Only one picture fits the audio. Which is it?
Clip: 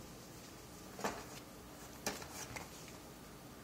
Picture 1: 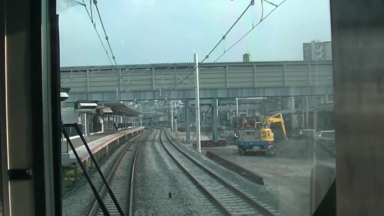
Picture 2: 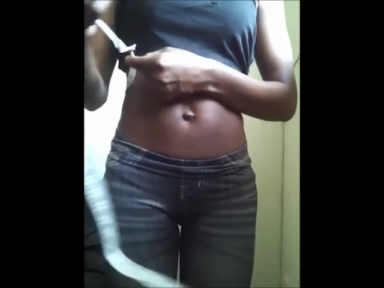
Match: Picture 2